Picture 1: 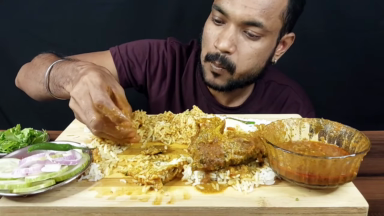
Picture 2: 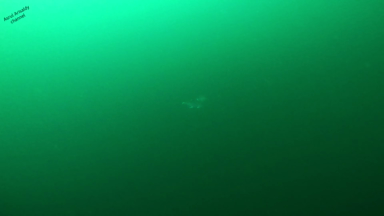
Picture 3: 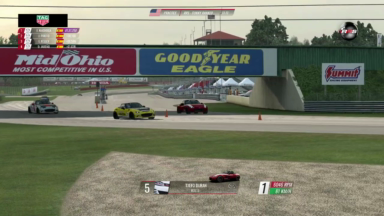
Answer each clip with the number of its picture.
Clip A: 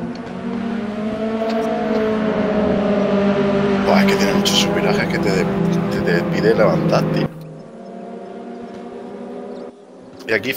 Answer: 3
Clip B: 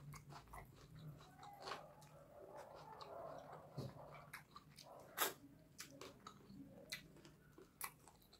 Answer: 1